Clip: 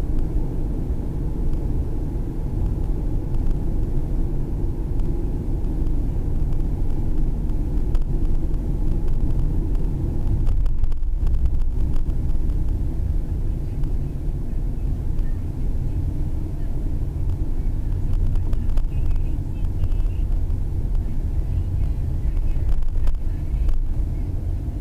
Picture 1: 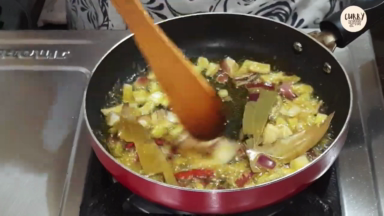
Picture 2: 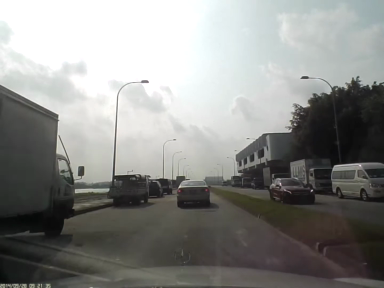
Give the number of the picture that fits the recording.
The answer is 2